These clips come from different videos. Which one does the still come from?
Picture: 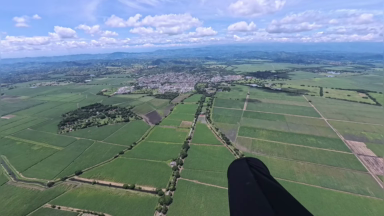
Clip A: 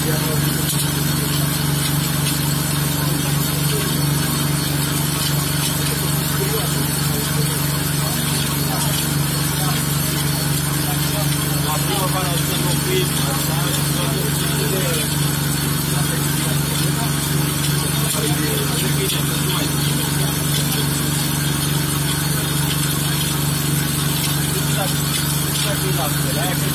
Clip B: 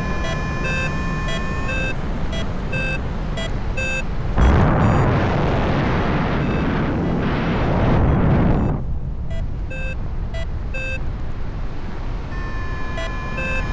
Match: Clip B